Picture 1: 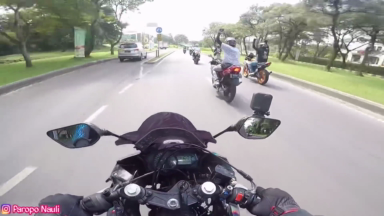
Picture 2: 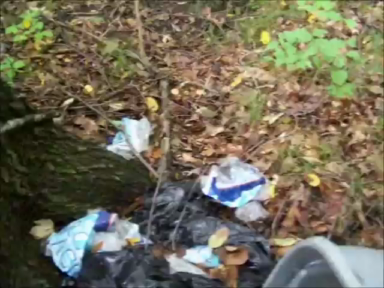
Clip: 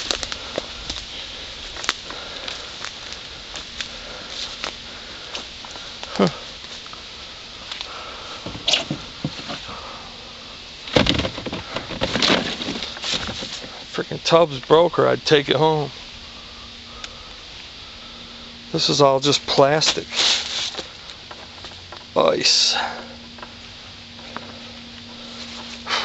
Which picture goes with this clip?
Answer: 2